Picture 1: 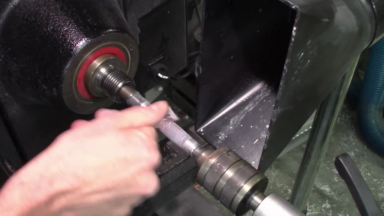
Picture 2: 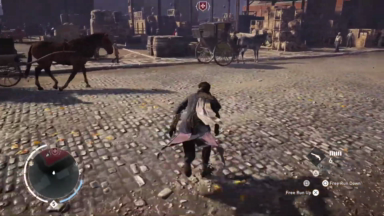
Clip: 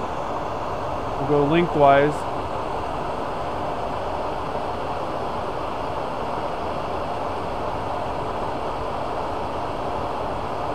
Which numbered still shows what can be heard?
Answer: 1